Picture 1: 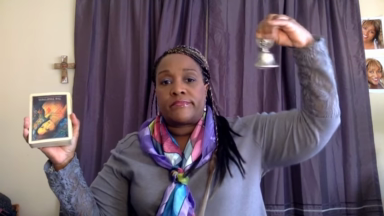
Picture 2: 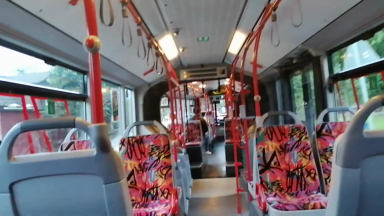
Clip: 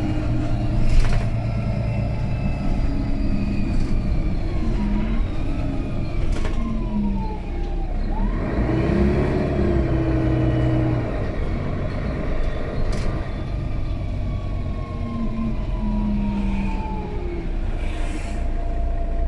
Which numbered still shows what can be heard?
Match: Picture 2